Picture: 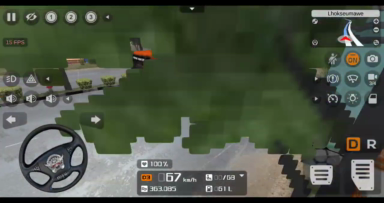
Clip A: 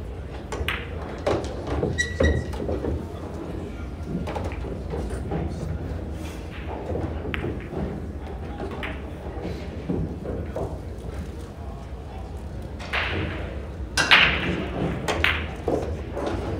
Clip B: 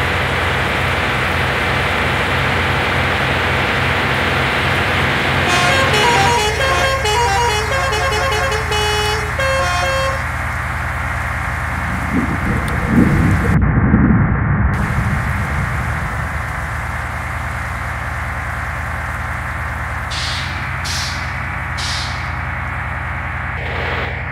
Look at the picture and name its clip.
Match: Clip B